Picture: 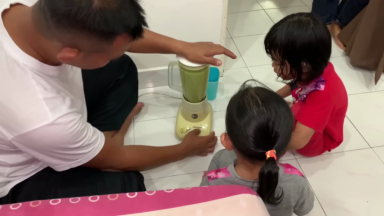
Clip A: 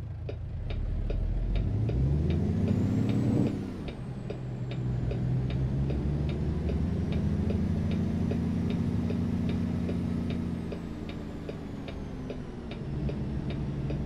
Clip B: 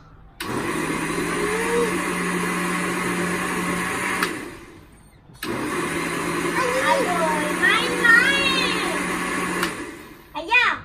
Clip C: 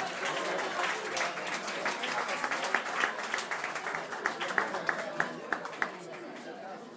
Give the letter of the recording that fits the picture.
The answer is B